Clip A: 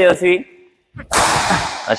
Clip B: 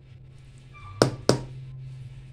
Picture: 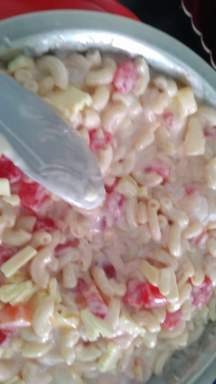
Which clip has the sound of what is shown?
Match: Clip B